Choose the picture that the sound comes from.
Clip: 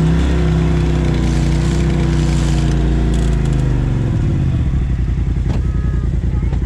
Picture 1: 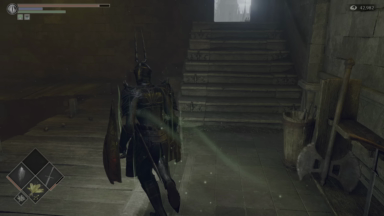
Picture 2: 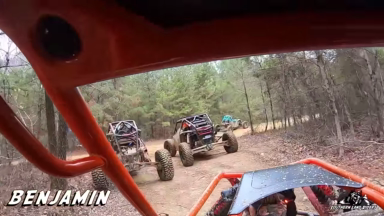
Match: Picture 2